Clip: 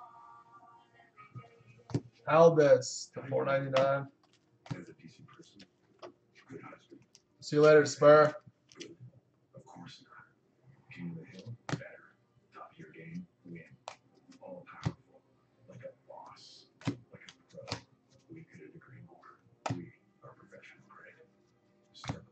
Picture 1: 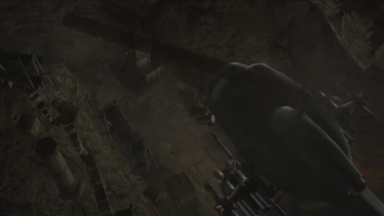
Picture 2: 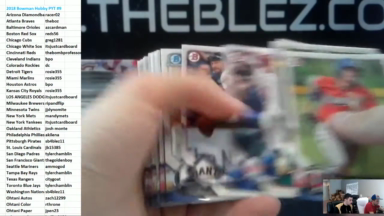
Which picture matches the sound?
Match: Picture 2